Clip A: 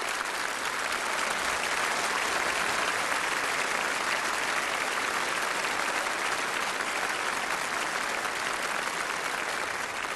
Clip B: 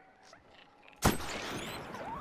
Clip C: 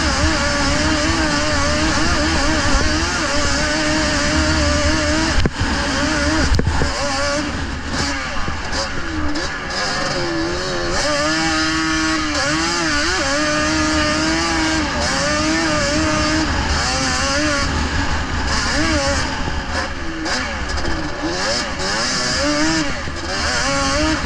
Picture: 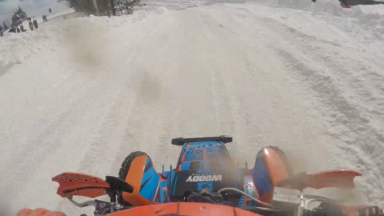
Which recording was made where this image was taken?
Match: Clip C